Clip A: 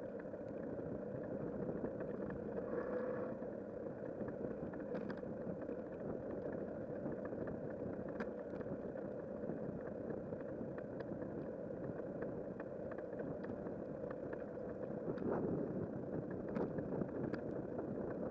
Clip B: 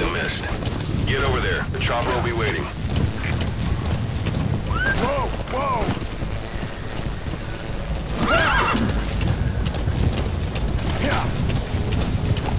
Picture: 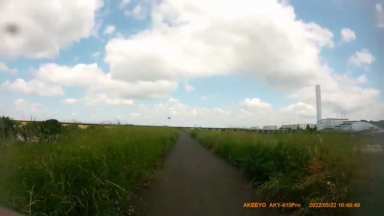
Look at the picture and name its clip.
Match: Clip A